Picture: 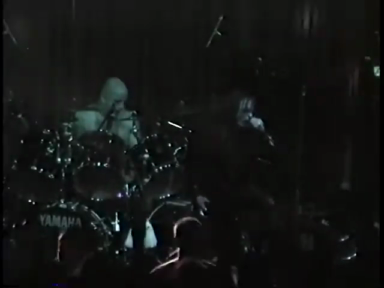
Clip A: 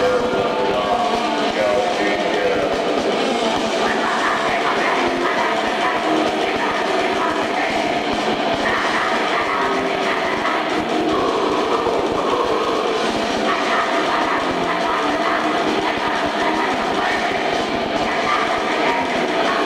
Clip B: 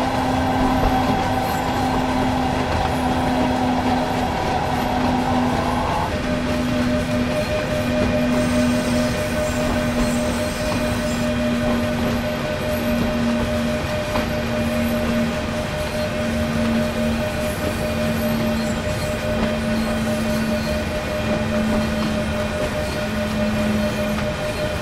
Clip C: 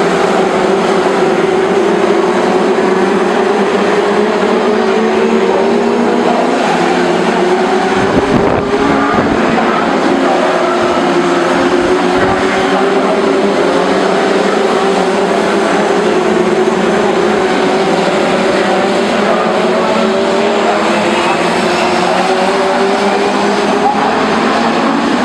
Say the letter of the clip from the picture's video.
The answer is A